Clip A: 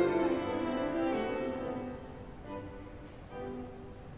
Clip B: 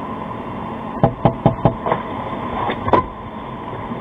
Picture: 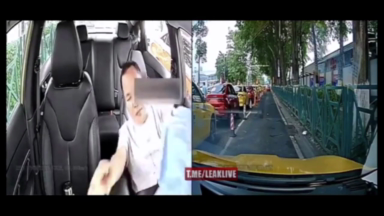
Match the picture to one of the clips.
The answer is B